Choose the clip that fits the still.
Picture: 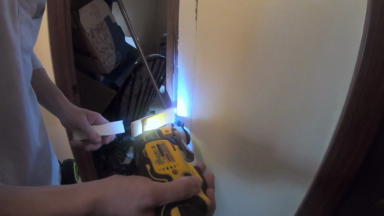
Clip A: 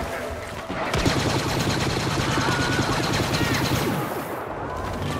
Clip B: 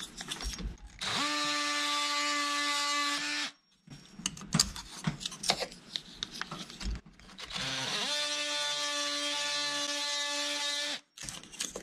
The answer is B